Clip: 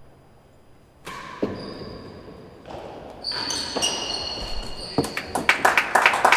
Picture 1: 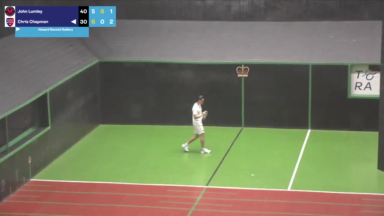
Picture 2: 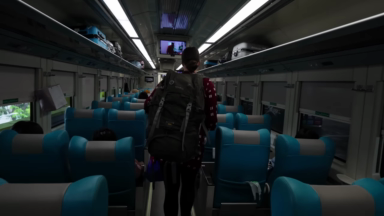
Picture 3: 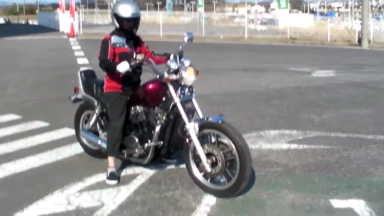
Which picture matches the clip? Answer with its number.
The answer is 1